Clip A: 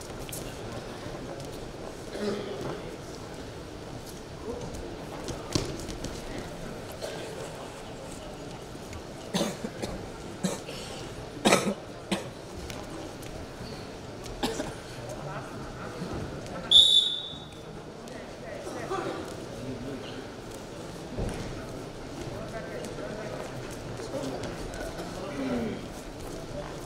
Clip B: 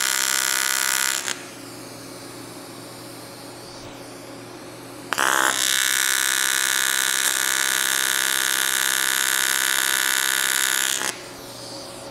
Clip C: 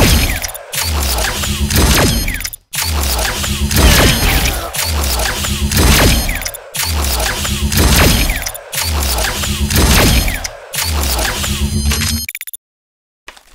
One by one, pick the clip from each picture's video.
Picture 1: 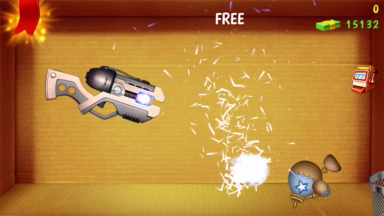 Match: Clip C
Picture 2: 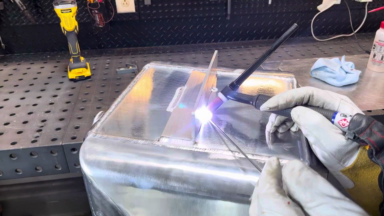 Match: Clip B